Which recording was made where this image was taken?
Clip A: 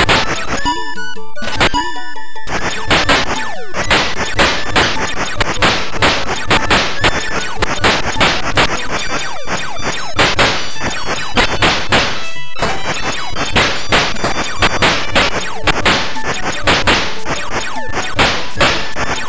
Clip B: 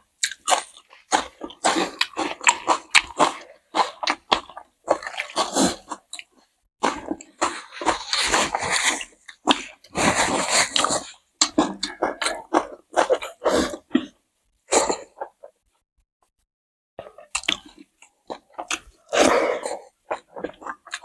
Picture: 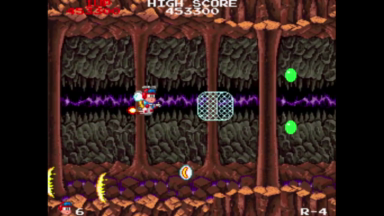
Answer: A